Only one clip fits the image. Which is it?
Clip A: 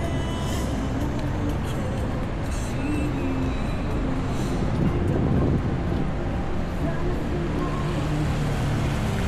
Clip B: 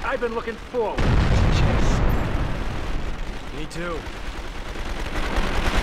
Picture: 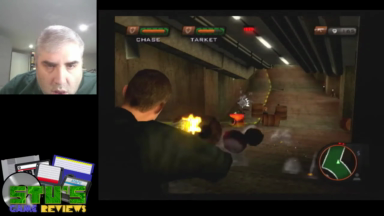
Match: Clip B